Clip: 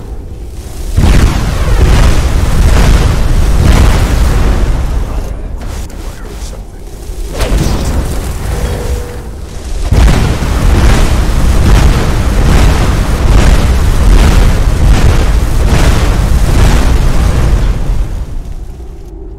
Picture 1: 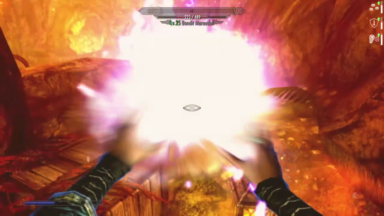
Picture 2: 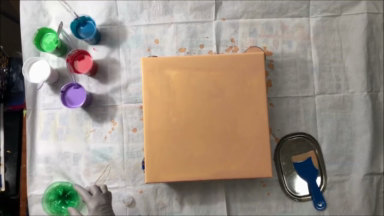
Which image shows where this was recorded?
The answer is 1